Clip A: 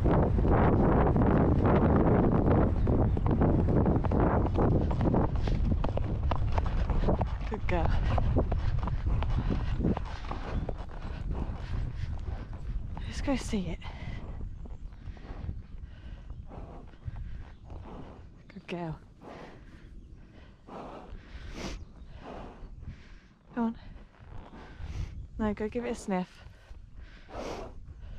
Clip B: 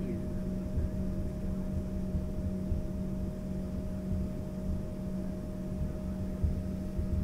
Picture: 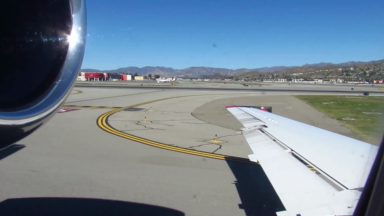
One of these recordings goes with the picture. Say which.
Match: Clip B